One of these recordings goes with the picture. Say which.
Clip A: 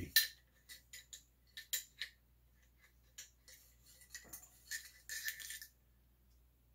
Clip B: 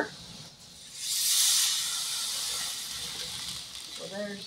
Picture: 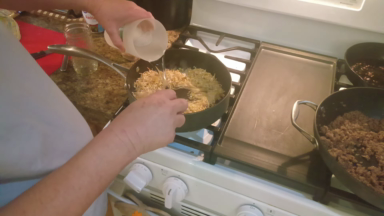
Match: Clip B